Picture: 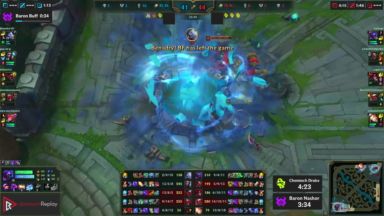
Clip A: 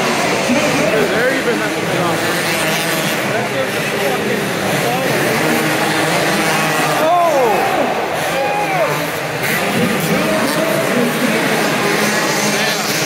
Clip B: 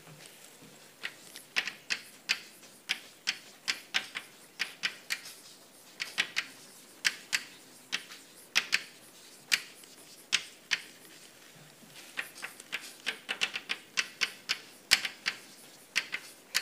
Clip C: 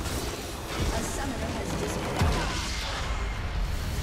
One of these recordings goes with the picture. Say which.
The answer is C